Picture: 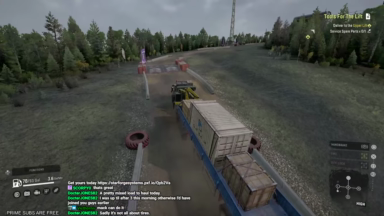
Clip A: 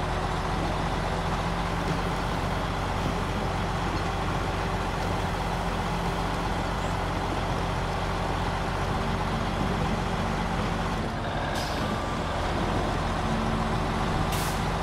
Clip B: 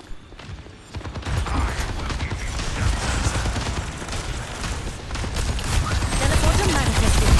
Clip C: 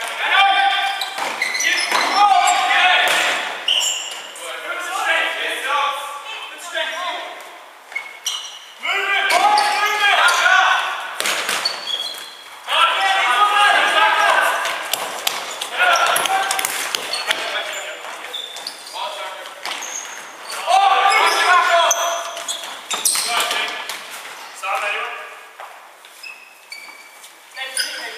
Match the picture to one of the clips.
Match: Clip A